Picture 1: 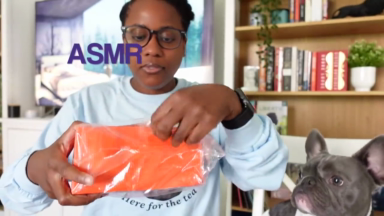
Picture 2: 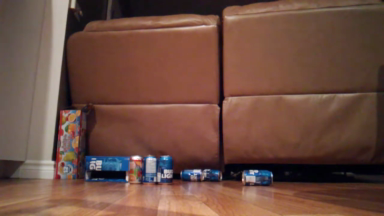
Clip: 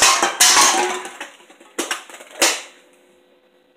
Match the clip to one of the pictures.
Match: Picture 2